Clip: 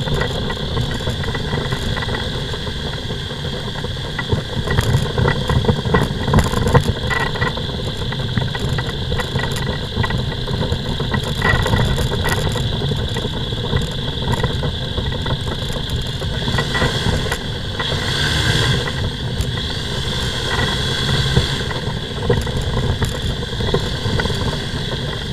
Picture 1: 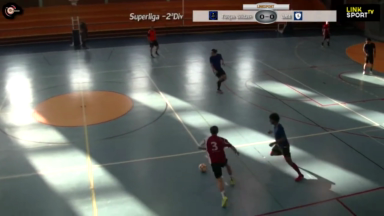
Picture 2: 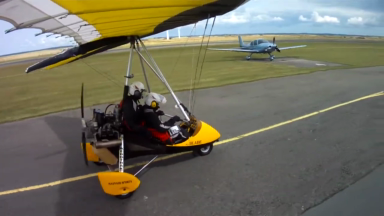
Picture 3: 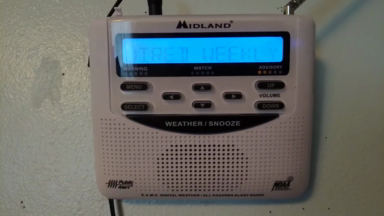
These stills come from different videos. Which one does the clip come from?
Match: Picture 2